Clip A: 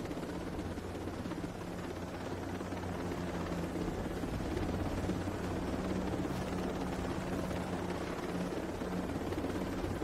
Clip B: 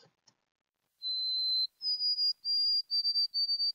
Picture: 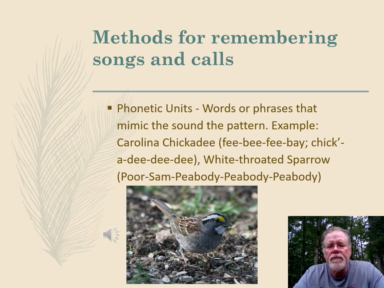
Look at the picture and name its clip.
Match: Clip B